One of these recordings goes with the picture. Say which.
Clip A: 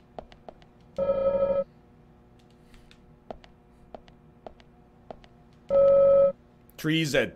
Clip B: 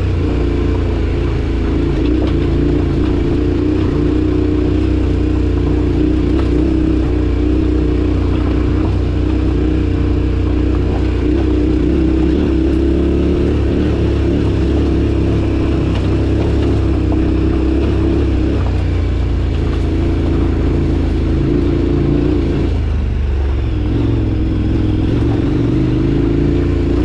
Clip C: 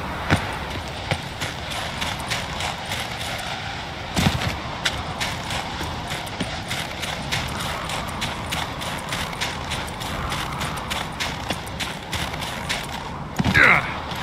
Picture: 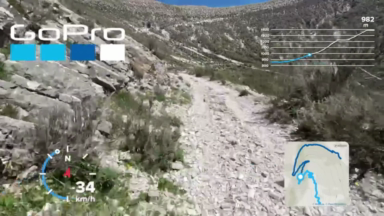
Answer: B